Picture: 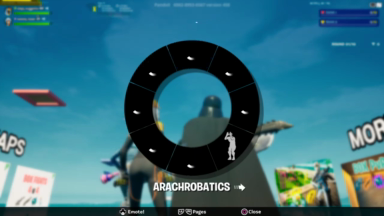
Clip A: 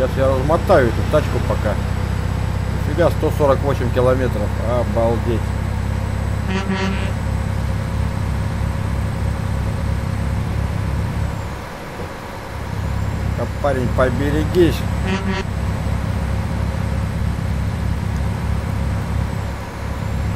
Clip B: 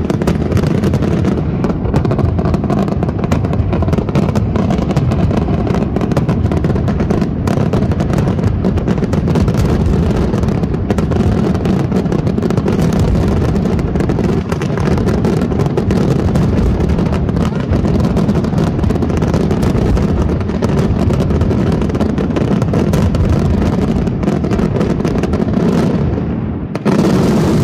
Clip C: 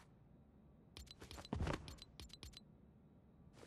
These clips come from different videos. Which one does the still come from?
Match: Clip C